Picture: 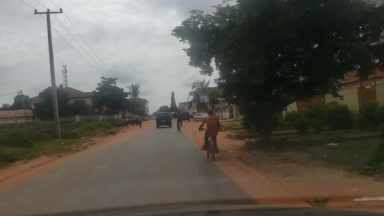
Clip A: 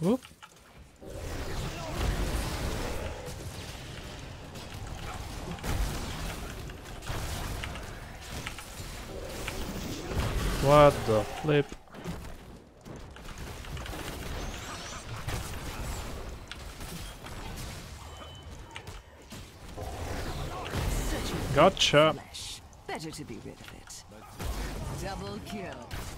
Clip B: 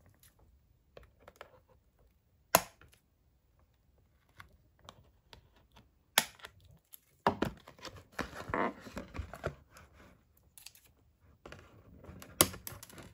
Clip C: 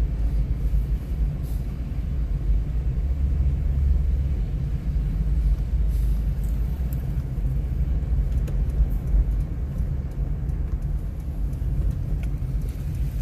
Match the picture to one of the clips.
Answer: C